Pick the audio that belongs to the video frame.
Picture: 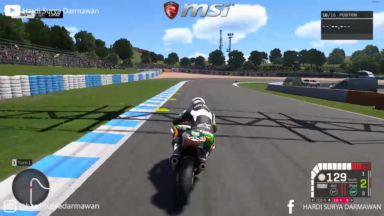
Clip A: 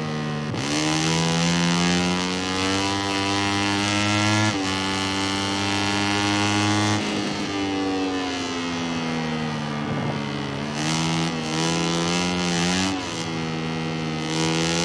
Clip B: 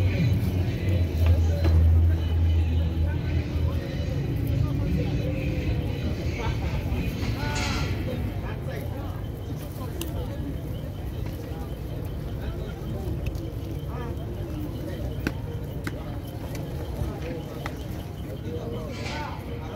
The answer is A